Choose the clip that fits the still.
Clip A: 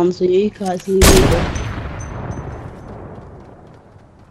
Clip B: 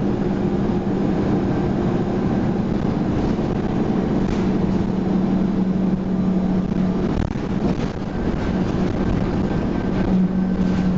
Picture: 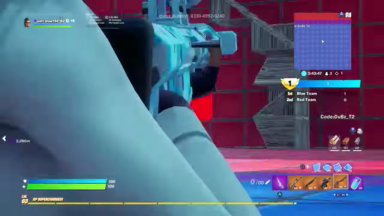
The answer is A